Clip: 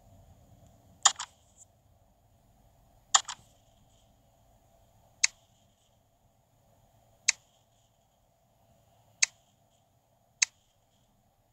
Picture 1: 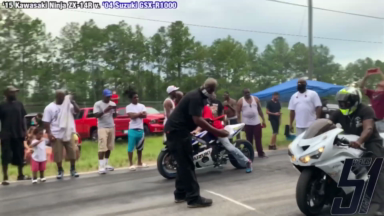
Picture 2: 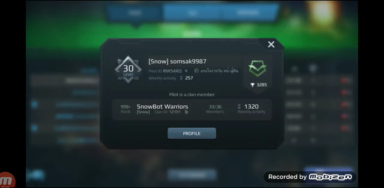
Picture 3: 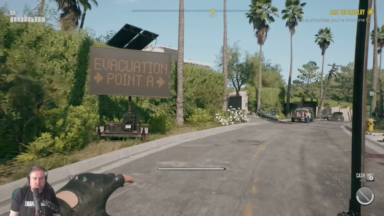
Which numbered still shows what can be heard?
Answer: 2